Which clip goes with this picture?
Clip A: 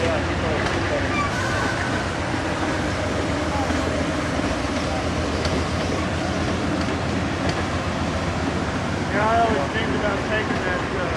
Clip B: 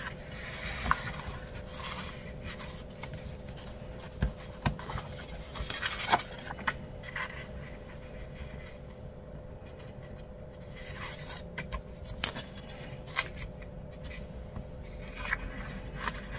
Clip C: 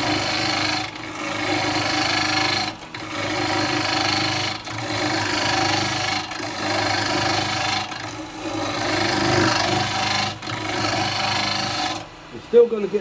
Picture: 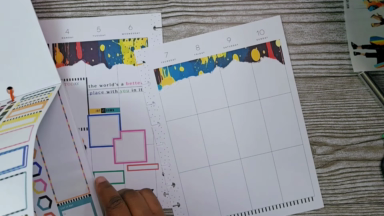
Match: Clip B